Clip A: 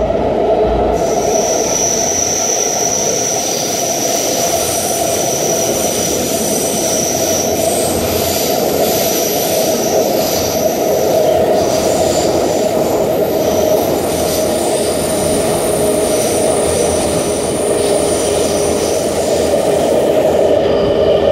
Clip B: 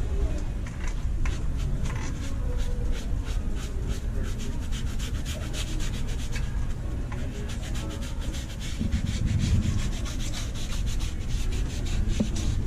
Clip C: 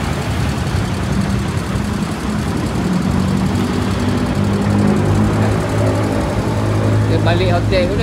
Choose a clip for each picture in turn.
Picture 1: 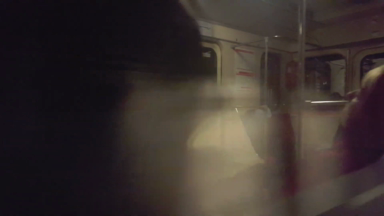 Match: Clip A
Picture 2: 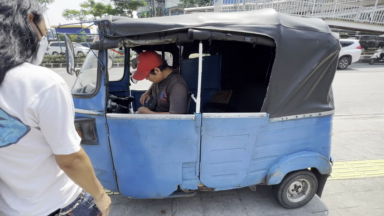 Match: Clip C